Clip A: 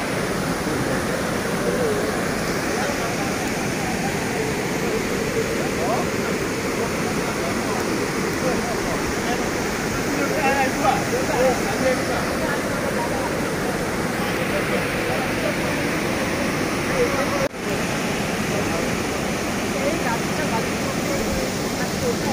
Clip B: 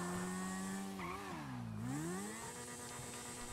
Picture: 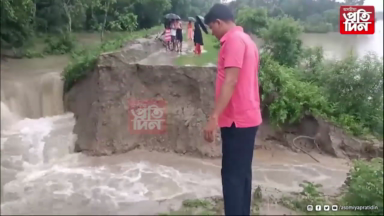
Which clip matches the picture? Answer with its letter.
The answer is A